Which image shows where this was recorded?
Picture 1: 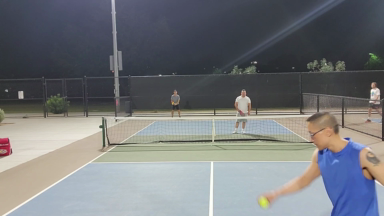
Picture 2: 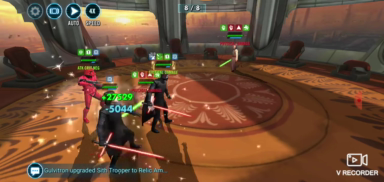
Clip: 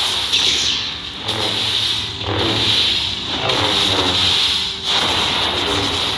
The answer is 2